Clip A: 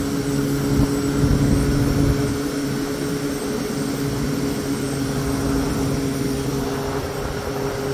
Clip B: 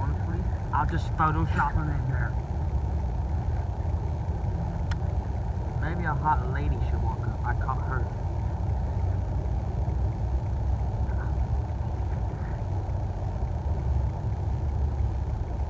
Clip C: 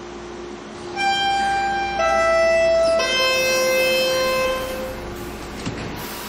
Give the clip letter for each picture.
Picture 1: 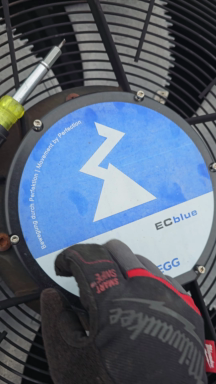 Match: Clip A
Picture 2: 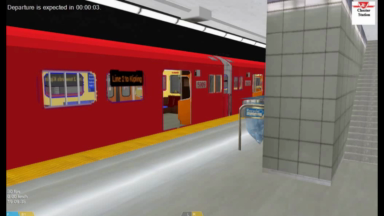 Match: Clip C